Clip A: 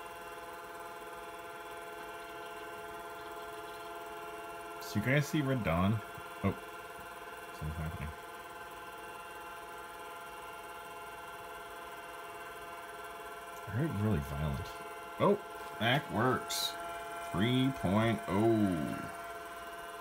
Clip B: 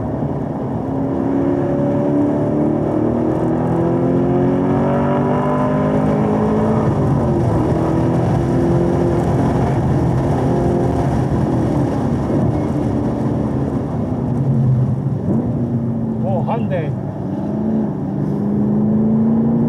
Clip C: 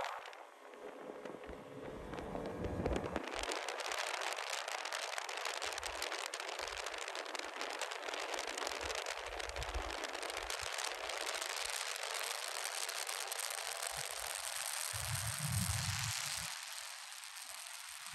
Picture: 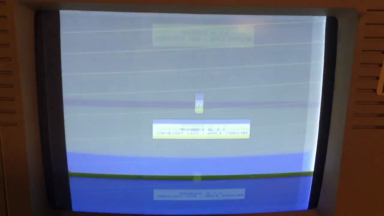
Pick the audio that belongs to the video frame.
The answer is A